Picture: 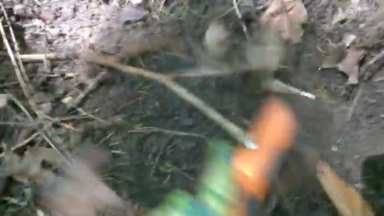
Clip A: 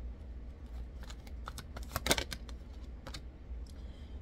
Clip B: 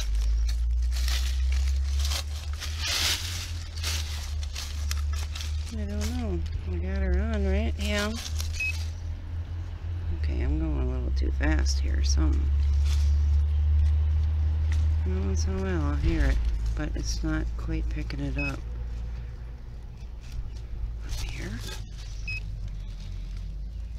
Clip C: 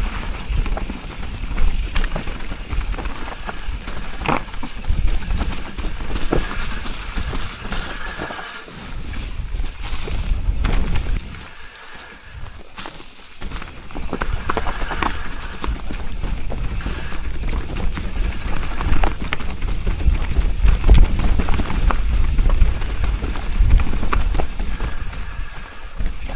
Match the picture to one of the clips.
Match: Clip B